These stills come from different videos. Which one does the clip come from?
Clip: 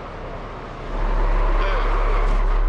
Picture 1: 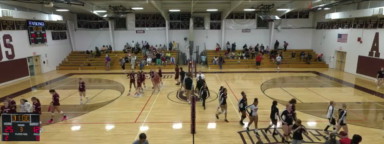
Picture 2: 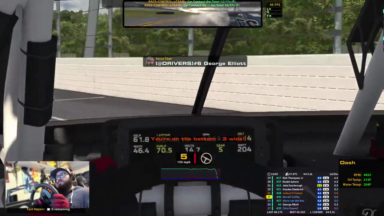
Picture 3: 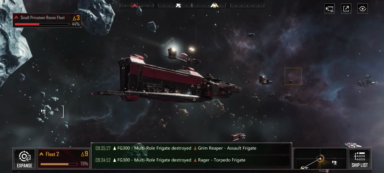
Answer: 2